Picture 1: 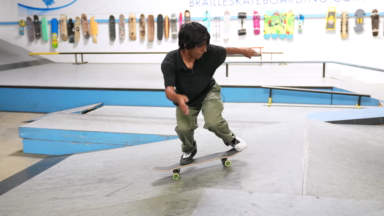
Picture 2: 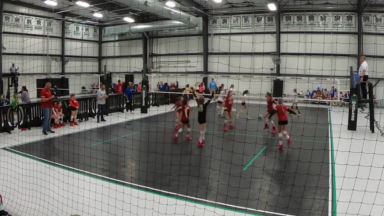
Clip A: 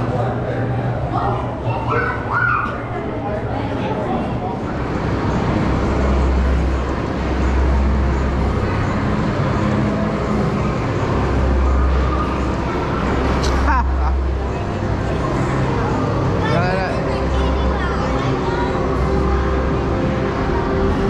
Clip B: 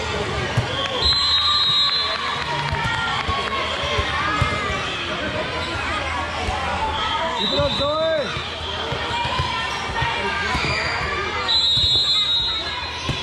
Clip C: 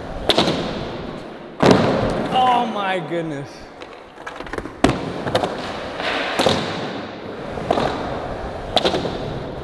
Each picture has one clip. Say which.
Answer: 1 C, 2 B